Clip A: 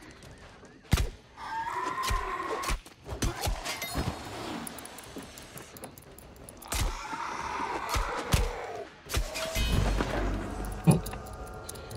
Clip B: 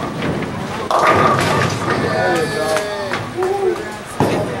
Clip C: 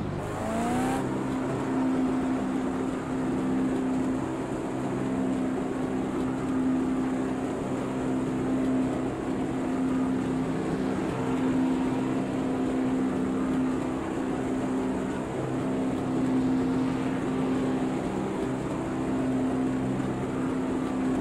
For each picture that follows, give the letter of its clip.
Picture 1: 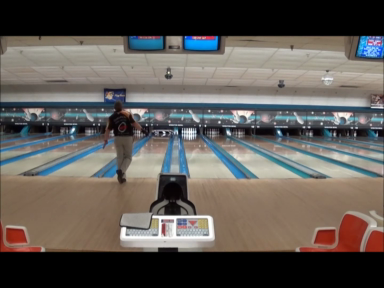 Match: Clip B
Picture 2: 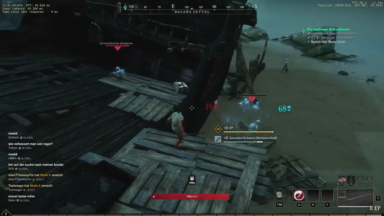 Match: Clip A